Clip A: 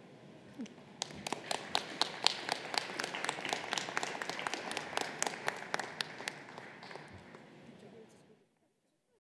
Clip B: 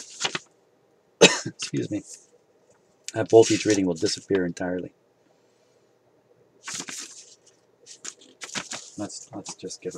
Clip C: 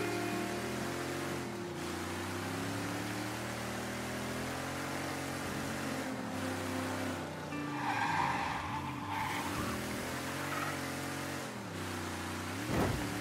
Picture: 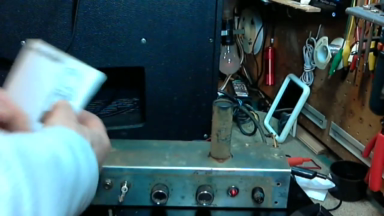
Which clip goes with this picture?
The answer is B